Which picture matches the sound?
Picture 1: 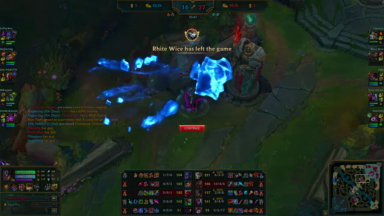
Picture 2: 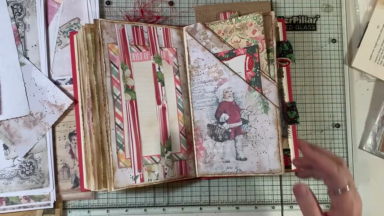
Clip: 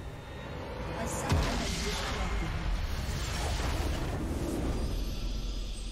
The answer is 1